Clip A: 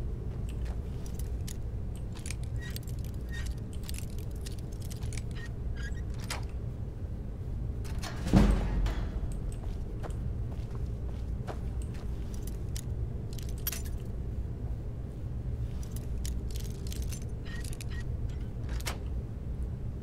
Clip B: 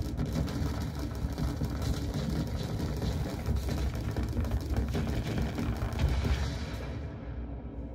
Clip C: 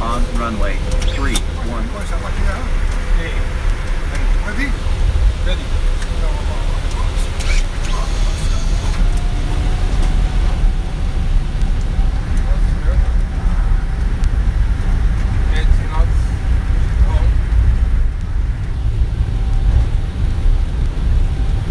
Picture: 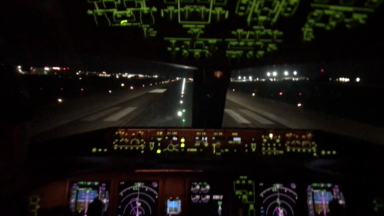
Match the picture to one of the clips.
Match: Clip C